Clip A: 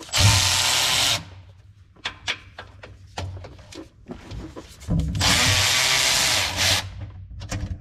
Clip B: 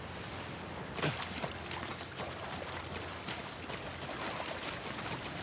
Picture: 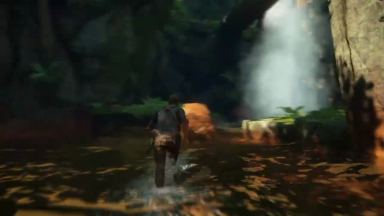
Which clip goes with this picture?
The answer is B